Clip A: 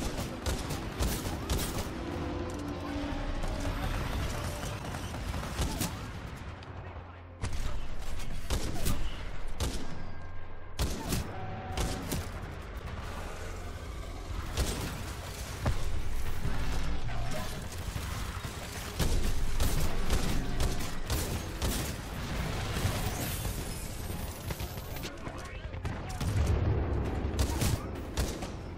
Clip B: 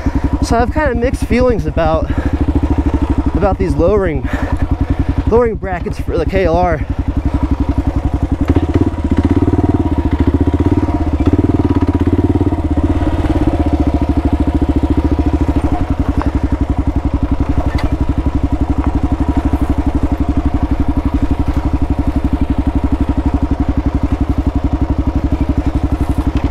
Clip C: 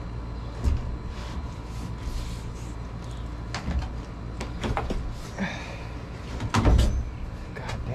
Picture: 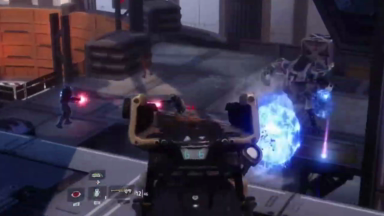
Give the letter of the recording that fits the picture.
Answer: A